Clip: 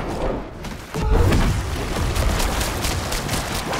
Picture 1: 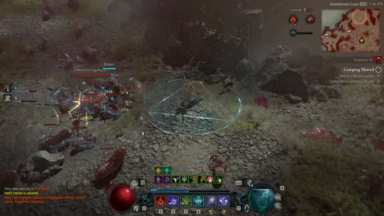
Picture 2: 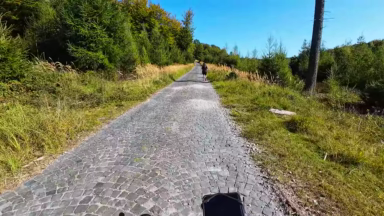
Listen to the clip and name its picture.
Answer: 1